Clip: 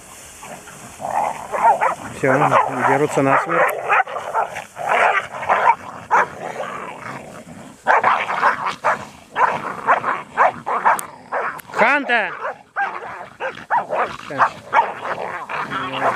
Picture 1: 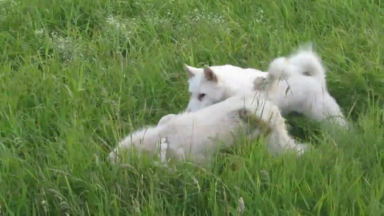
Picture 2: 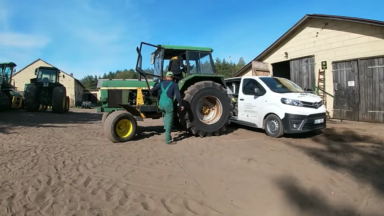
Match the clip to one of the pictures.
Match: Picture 1